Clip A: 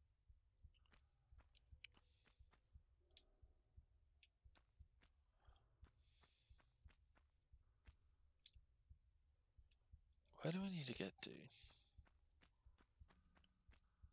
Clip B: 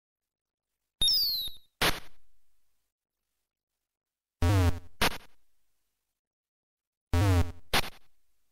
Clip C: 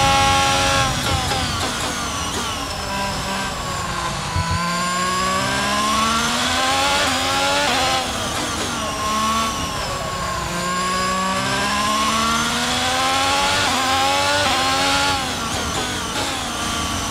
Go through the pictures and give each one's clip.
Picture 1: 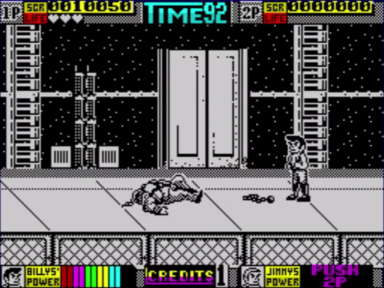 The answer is B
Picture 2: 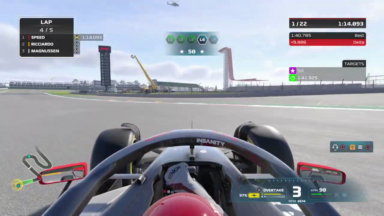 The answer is C